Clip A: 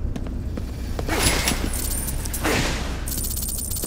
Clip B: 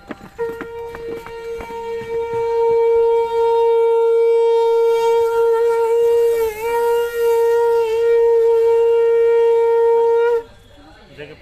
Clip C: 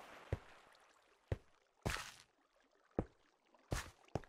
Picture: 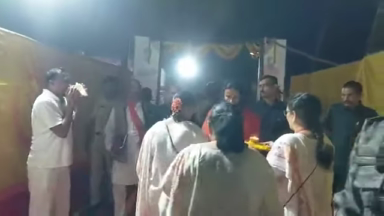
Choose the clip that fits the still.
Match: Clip B